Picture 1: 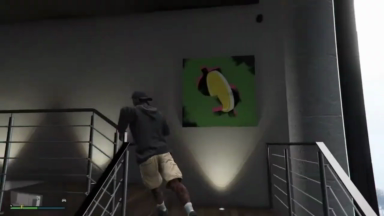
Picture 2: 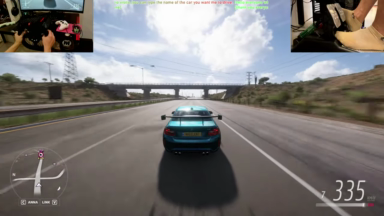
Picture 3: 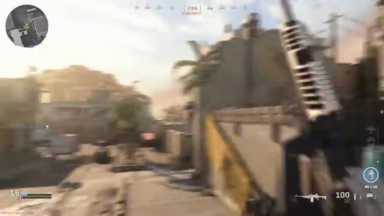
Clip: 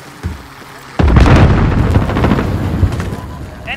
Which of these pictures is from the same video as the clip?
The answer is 3